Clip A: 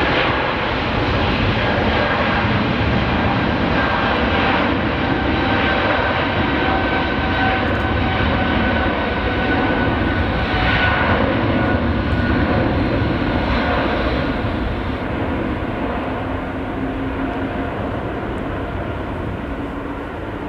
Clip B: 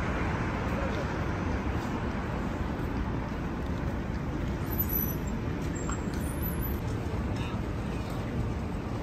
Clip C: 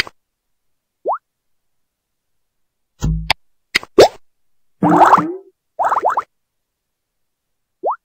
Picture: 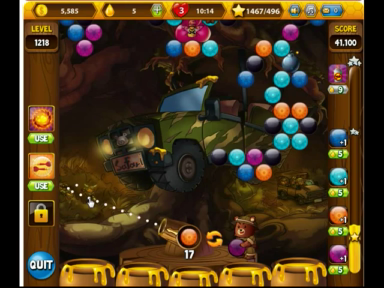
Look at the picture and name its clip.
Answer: C